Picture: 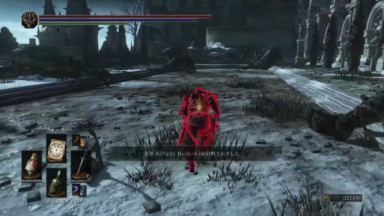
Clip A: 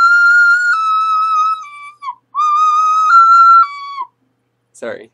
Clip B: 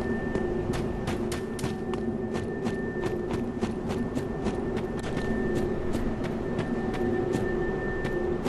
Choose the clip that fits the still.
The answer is B